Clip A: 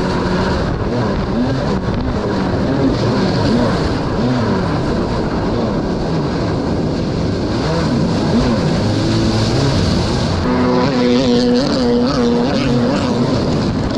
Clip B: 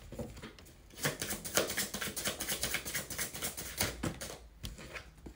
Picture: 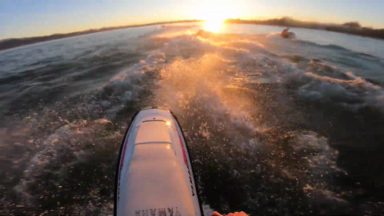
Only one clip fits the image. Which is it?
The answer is A